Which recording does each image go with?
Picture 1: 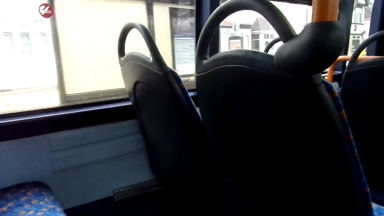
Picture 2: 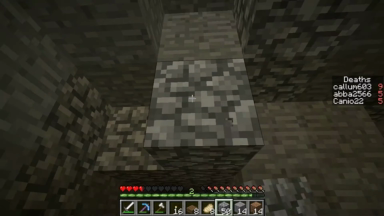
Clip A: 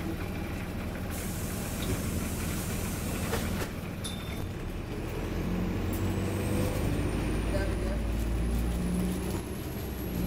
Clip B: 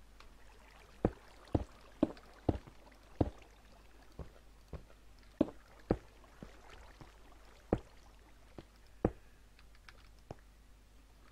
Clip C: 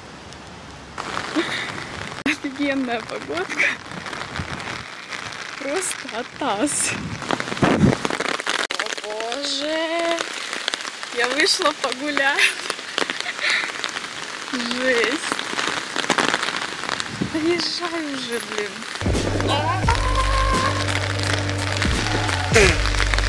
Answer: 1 A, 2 B